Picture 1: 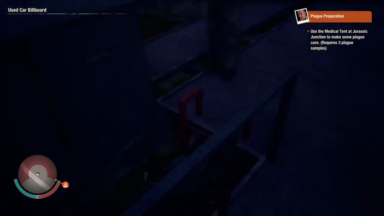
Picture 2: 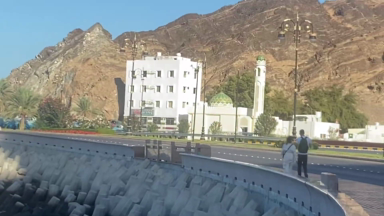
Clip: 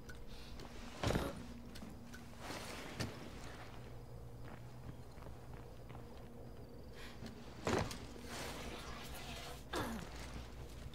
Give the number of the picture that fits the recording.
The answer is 1